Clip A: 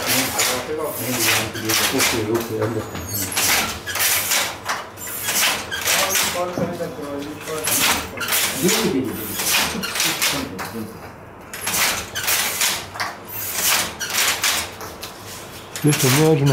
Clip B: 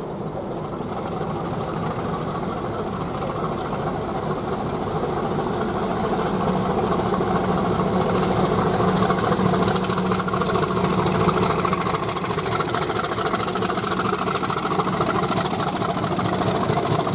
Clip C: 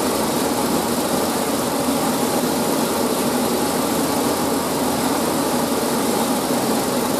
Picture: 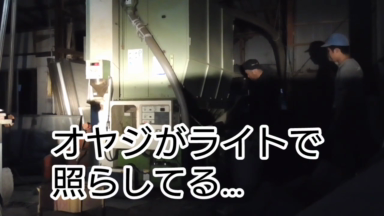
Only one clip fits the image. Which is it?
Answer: C